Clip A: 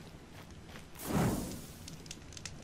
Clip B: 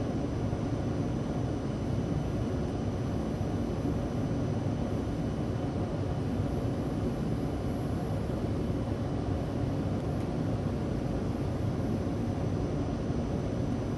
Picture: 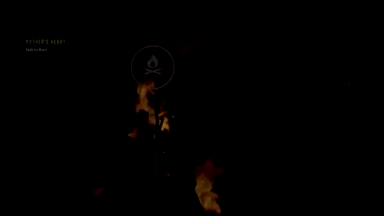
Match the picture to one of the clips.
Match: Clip A